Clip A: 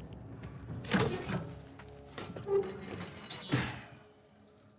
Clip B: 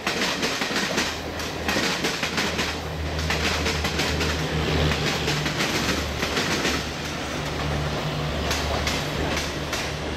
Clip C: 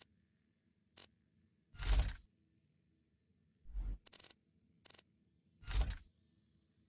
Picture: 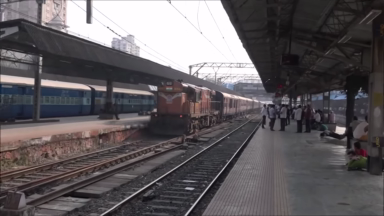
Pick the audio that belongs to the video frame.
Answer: B